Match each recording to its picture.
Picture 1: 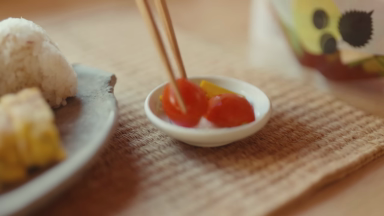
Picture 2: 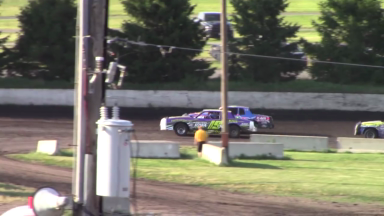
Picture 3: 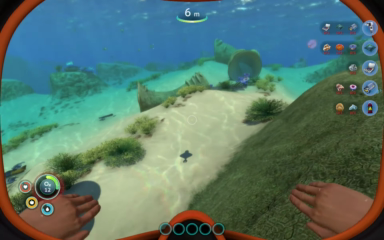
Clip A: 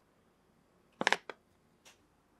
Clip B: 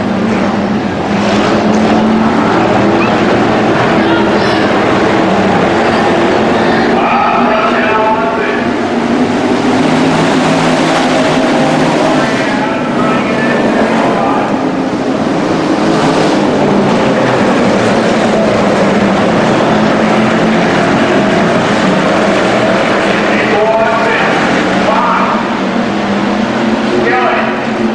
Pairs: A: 1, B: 2